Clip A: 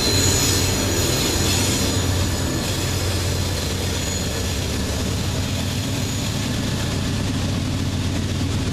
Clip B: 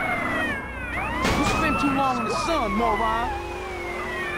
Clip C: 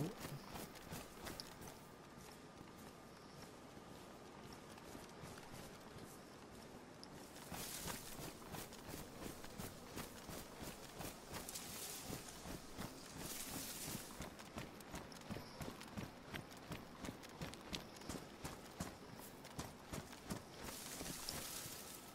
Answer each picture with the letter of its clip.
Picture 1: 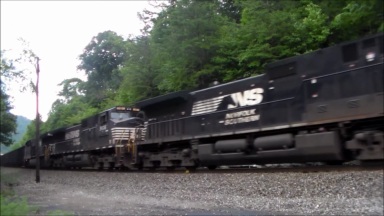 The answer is A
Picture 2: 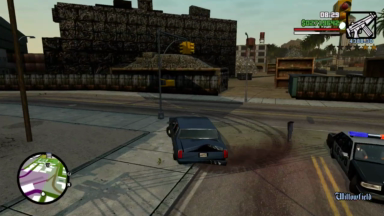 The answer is B